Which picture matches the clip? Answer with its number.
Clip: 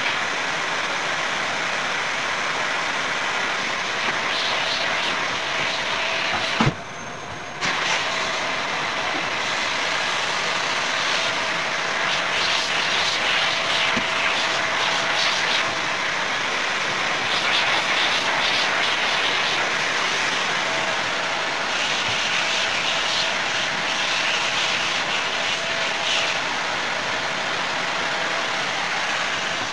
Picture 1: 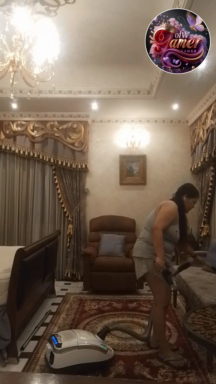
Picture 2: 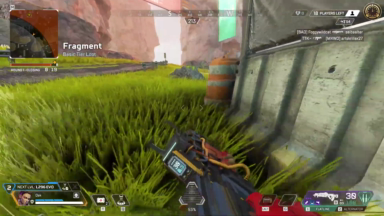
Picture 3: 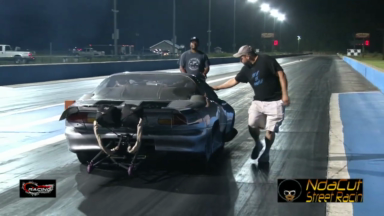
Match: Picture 1